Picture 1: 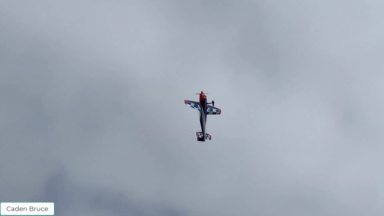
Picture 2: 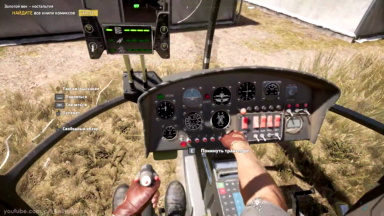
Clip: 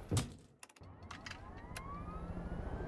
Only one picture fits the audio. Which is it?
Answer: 2